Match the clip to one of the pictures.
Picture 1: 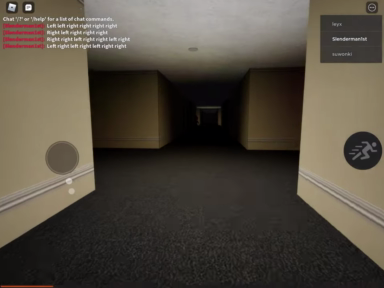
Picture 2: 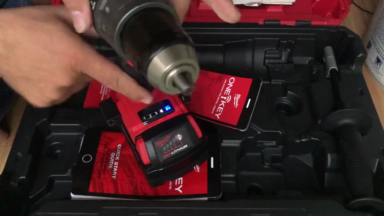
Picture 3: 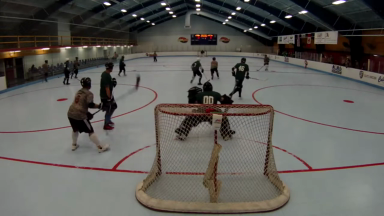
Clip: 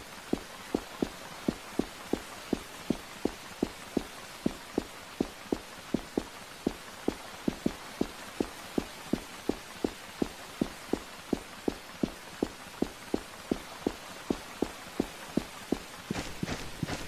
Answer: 1